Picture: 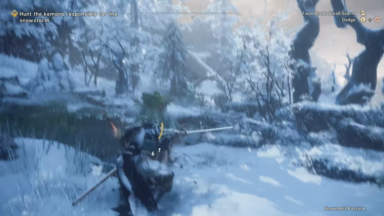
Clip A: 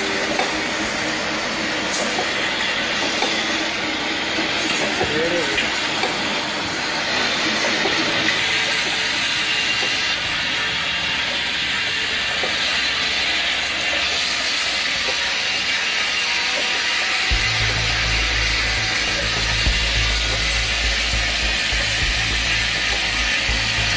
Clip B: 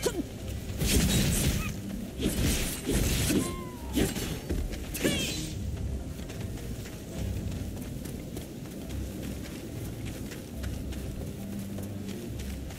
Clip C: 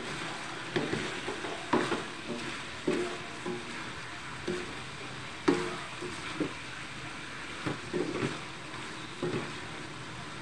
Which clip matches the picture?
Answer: B